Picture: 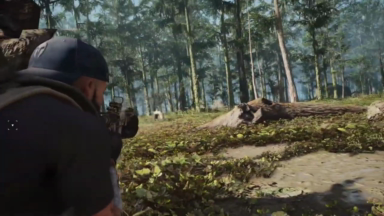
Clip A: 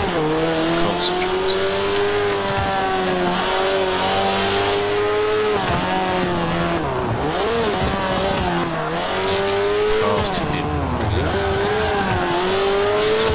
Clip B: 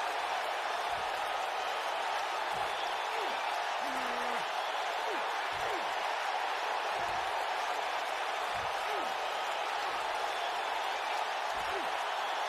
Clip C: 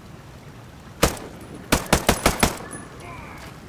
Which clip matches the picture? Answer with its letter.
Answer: C